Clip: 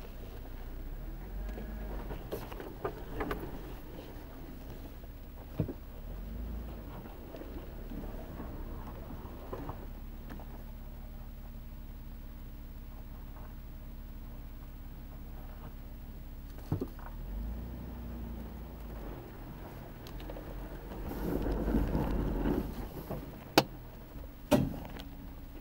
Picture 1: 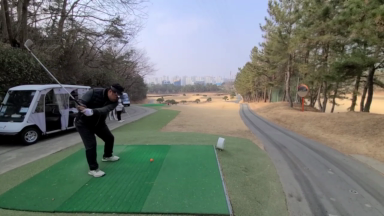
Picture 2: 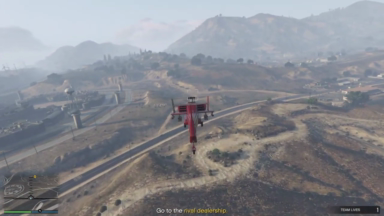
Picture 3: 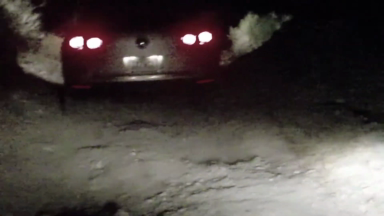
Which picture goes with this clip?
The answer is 3